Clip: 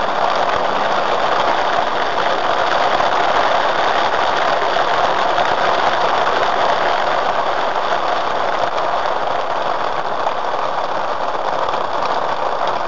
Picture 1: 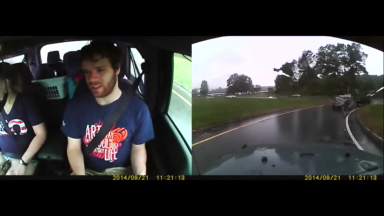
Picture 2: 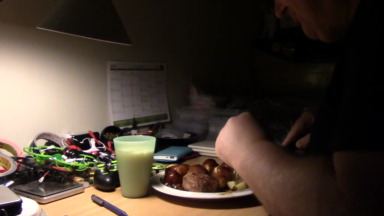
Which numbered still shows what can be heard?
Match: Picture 1